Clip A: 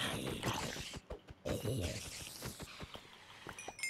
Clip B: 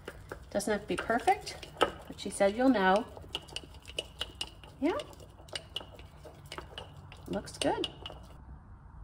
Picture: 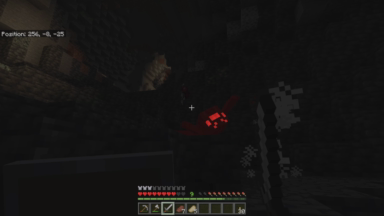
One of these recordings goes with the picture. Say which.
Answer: A